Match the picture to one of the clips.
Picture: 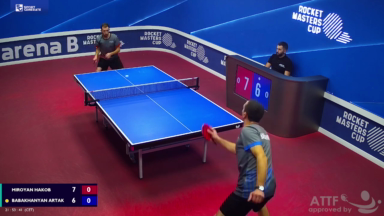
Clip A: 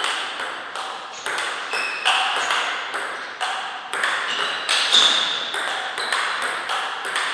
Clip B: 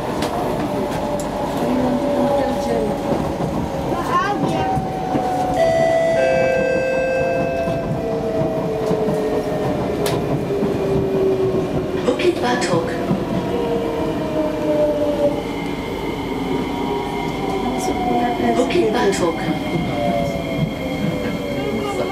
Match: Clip A